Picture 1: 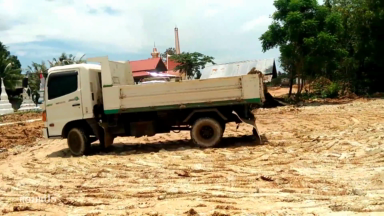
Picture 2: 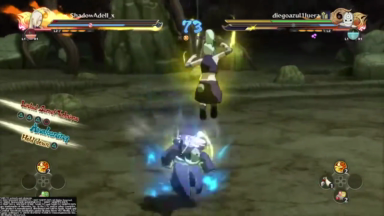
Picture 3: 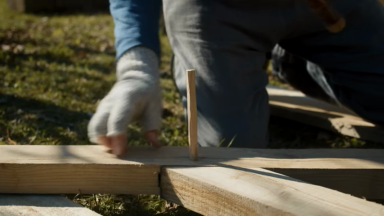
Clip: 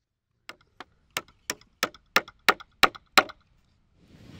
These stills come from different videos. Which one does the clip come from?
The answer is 3